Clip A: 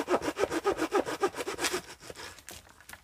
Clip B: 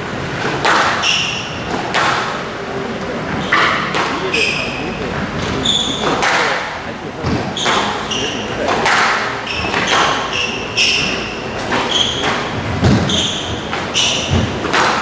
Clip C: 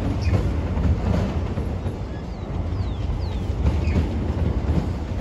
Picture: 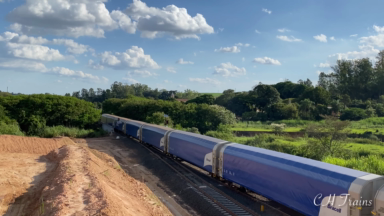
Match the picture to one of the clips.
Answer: C